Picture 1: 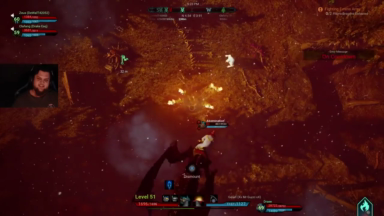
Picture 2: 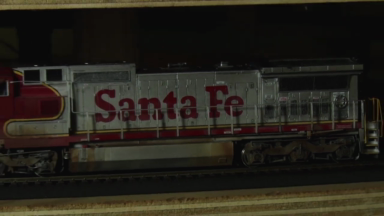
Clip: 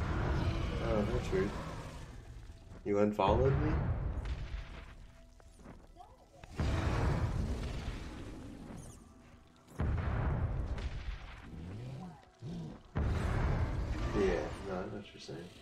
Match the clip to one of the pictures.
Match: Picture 1